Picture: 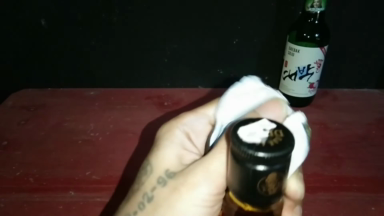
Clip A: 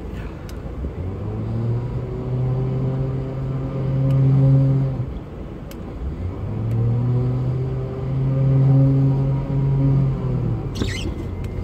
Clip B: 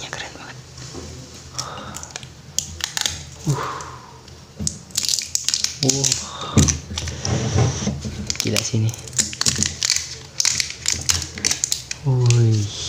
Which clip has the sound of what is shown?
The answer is B